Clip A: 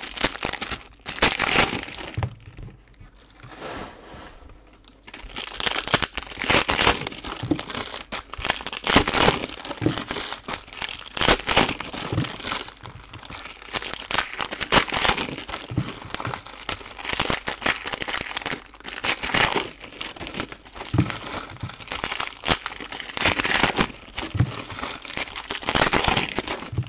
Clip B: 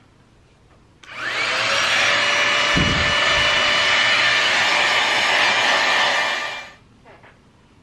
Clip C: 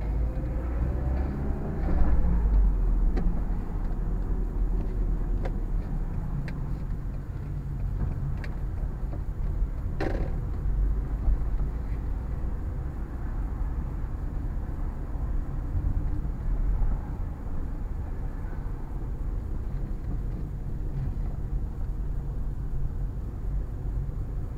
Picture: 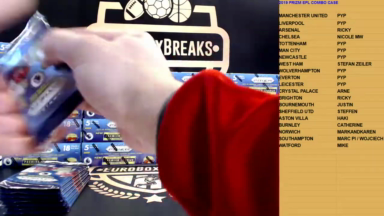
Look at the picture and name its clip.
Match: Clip A